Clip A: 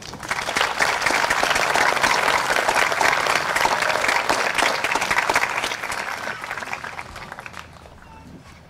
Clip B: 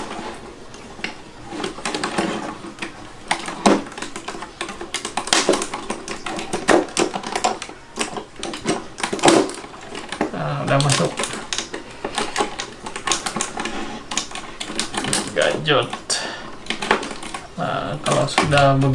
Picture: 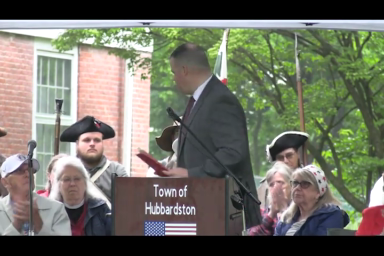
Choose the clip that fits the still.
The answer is A